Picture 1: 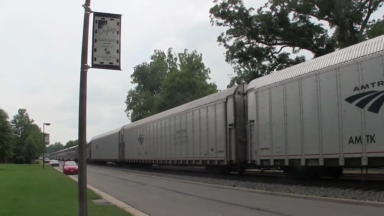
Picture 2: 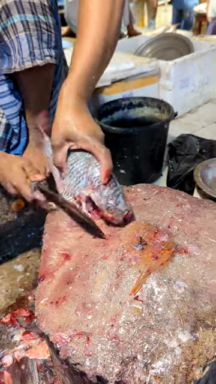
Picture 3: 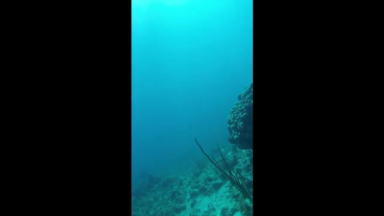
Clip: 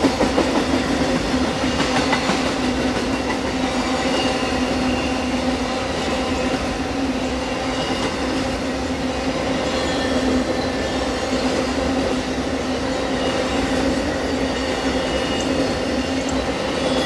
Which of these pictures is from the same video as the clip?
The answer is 1